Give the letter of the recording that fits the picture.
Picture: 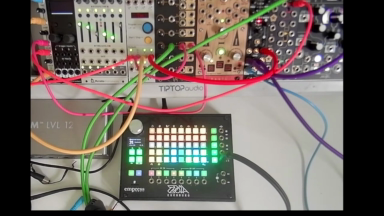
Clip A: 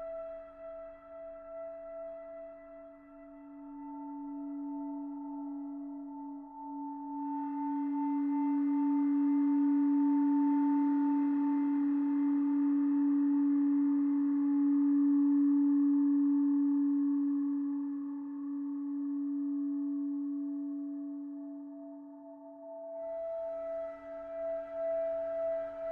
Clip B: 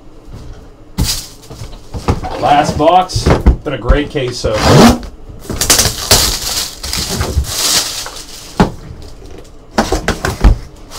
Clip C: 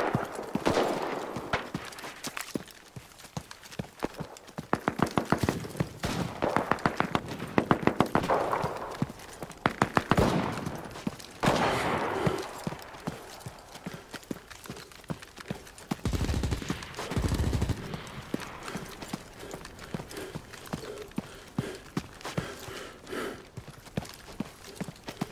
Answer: A